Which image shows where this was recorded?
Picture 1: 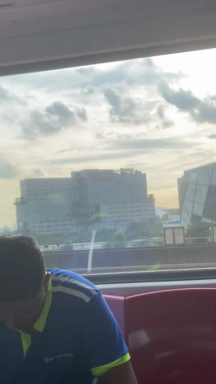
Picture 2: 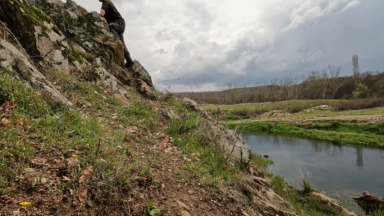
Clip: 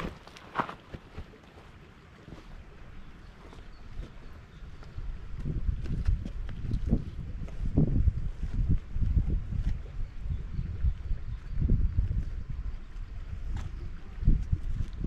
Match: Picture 2